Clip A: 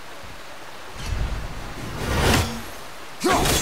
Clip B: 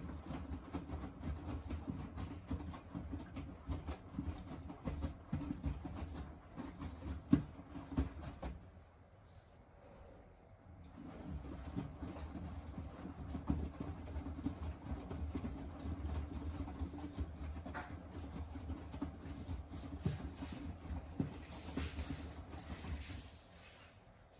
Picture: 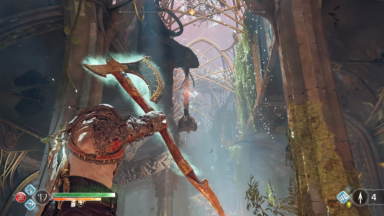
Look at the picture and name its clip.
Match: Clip A